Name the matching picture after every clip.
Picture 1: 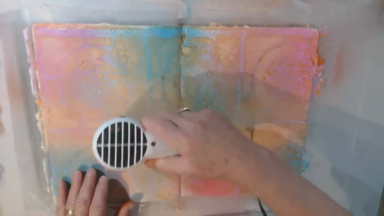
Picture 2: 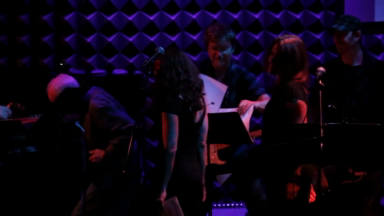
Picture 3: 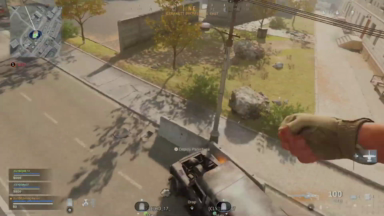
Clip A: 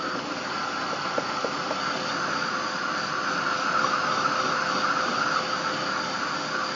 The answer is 1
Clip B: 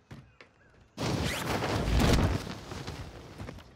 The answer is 3